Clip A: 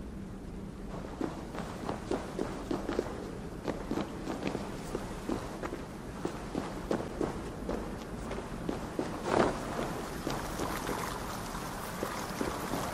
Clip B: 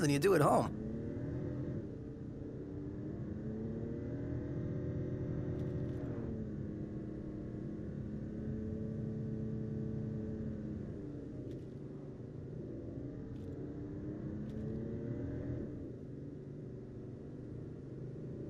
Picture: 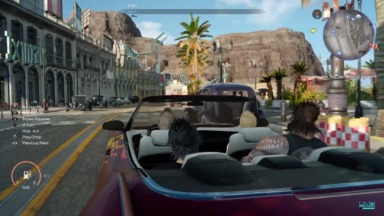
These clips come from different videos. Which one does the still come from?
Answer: B